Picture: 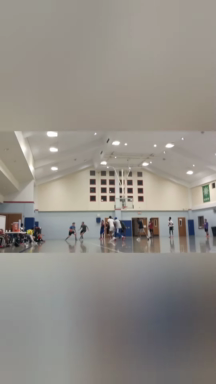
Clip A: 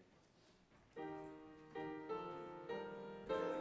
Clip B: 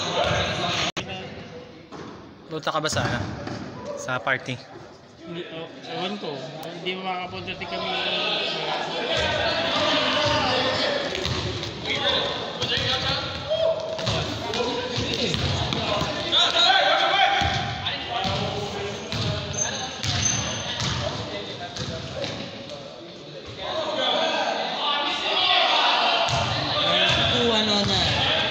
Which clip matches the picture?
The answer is B